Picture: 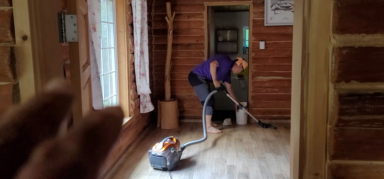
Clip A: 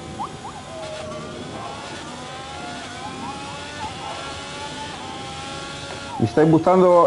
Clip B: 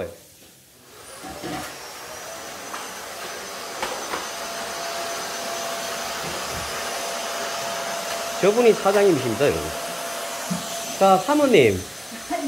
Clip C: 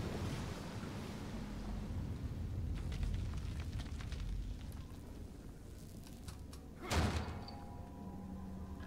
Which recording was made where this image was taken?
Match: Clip B